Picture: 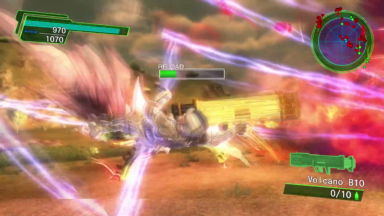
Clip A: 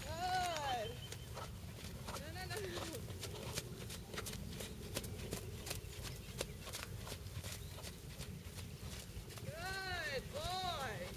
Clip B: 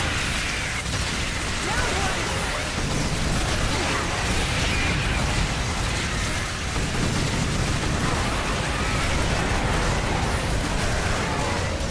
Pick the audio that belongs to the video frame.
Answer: B